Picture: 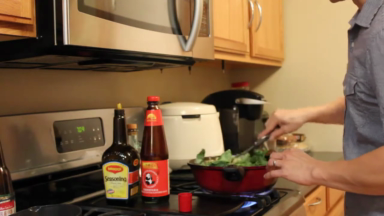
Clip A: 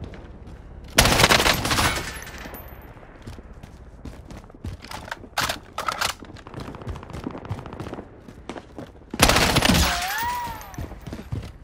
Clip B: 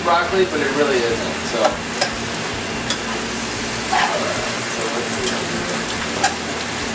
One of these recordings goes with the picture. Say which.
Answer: B